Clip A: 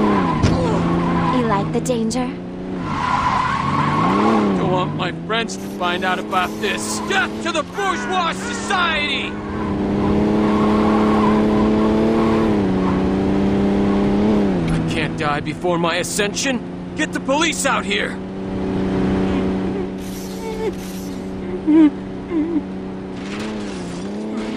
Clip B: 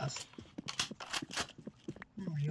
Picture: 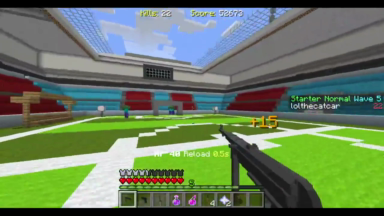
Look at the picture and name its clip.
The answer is B